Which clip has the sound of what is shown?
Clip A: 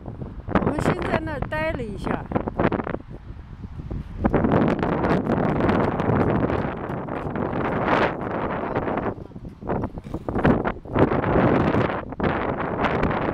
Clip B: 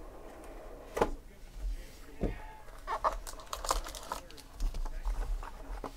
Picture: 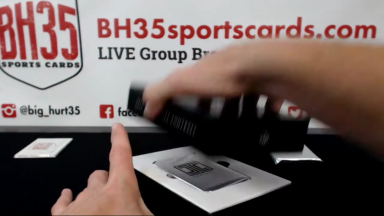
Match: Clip B